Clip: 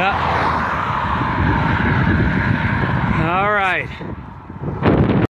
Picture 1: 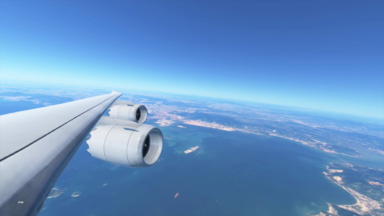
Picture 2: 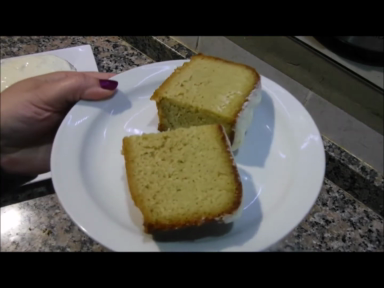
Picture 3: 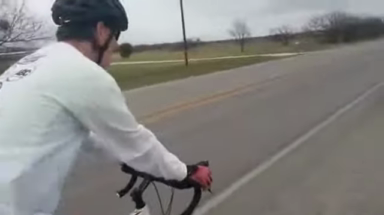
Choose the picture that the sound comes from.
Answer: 3